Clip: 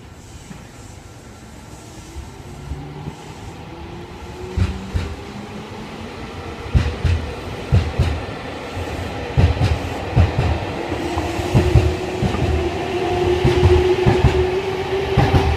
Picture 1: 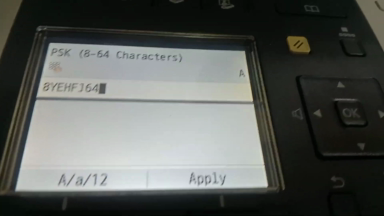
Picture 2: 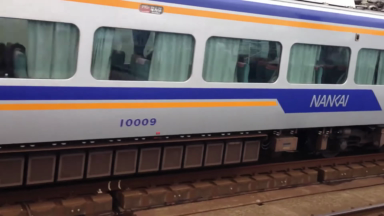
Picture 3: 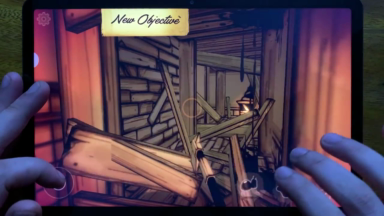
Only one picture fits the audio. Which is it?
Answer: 2